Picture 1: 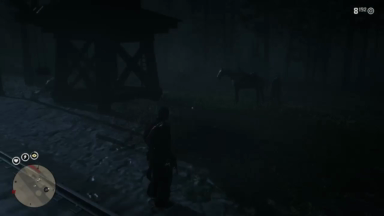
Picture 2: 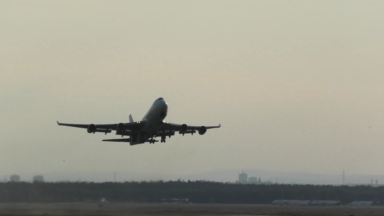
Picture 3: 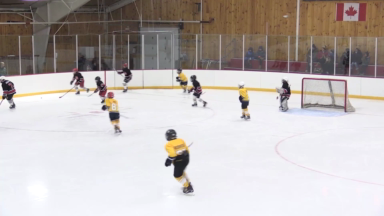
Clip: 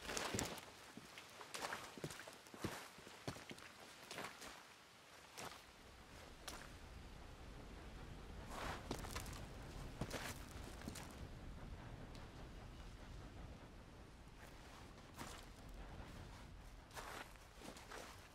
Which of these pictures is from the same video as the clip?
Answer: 1